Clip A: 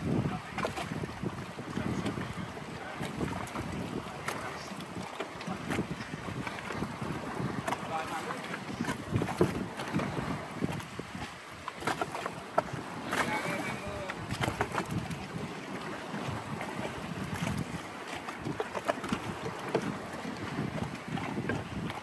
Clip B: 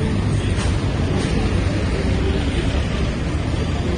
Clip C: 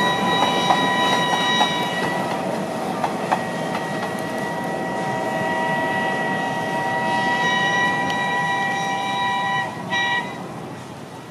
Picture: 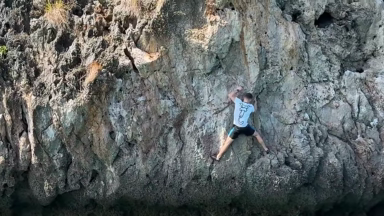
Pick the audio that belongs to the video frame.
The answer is A